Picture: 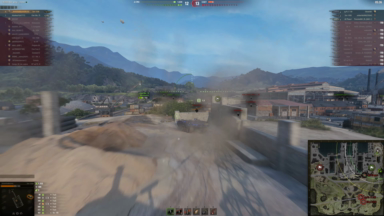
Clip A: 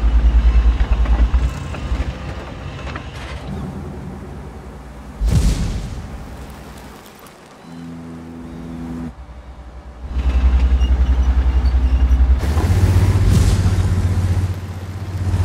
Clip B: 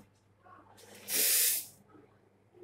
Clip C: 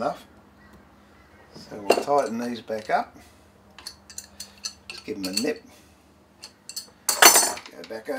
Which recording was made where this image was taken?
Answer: A